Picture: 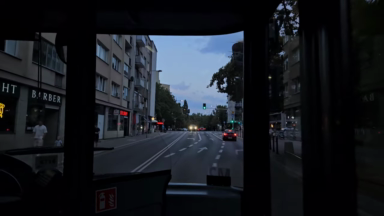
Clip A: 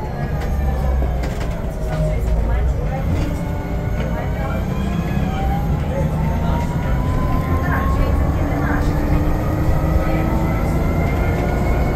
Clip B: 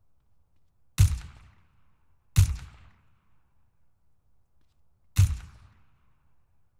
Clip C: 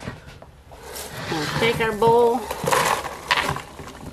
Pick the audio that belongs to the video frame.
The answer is A